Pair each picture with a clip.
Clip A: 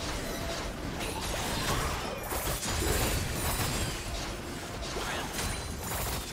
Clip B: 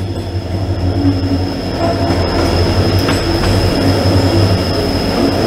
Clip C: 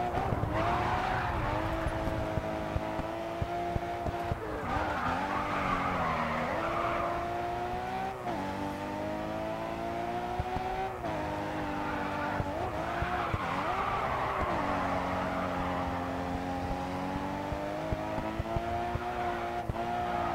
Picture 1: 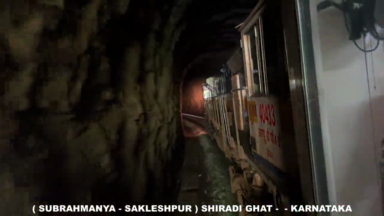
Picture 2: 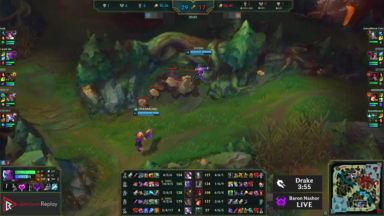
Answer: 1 B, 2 A